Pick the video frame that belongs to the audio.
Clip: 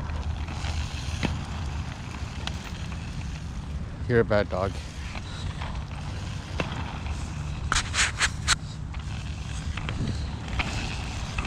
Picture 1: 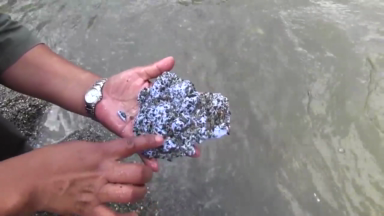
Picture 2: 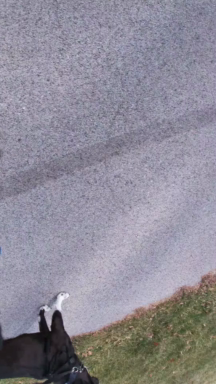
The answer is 2